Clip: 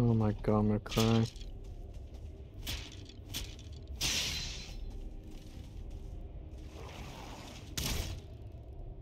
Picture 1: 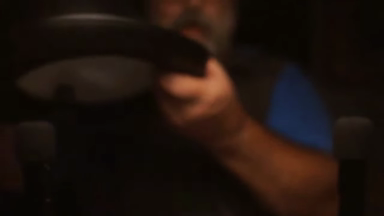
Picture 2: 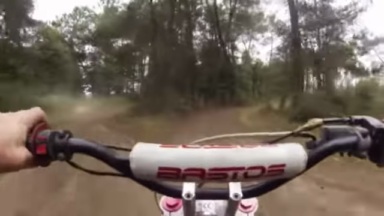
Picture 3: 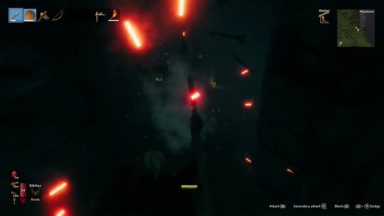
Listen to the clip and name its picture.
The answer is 3